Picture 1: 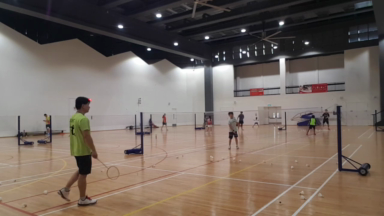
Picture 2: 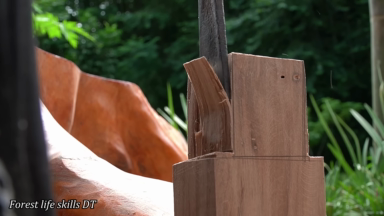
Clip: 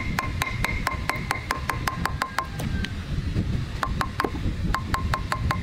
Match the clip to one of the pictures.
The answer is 2